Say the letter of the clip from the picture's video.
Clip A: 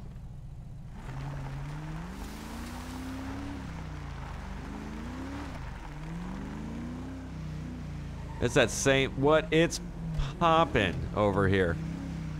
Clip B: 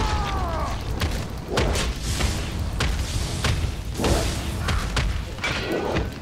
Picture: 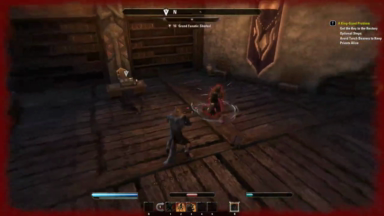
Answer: B